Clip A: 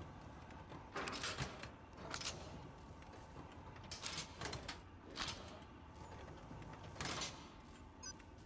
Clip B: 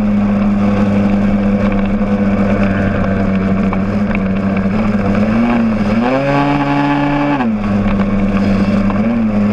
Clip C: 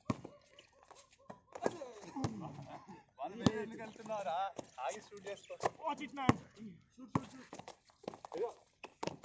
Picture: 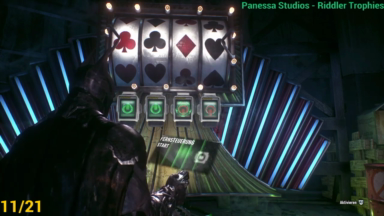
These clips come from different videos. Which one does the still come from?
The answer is A